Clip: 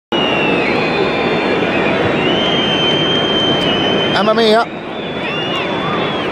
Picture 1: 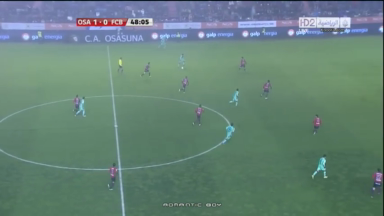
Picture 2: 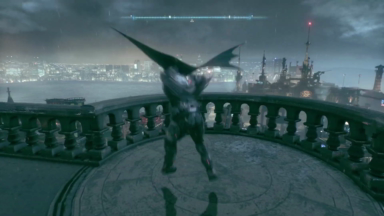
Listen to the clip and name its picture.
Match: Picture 1